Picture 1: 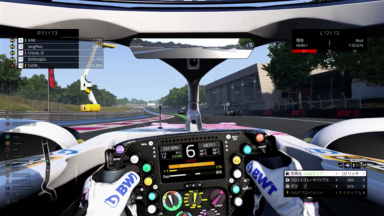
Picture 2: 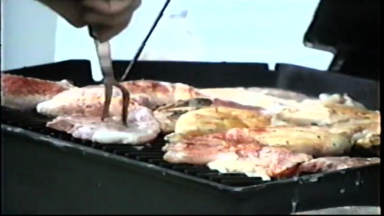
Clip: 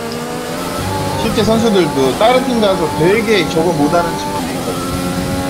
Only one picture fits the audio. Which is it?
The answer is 1